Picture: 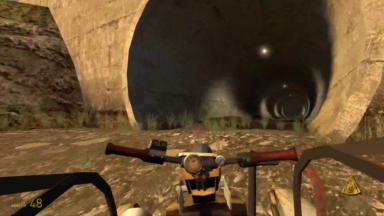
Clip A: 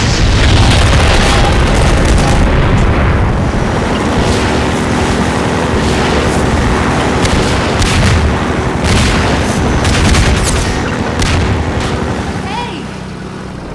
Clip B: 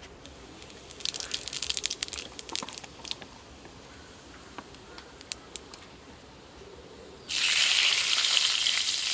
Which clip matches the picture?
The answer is A